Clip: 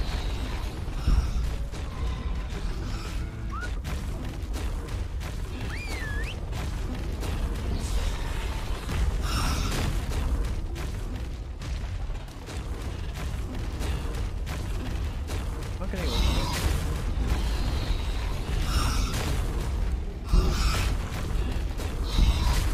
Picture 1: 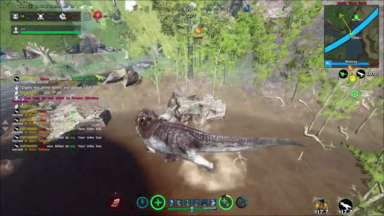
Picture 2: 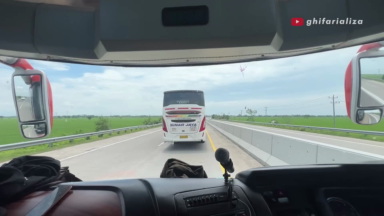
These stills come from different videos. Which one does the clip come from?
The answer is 1